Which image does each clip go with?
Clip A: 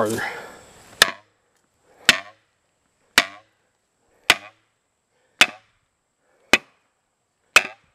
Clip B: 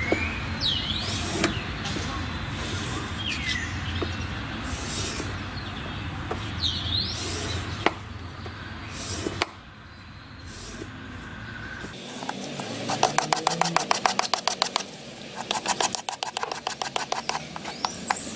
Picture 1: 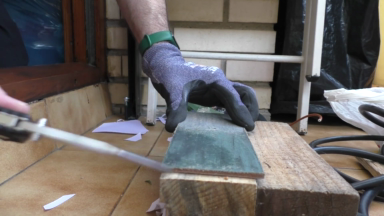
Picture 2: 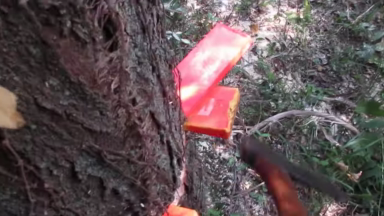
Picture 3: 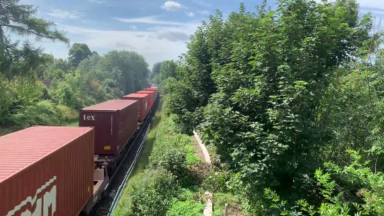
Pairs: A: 2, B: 1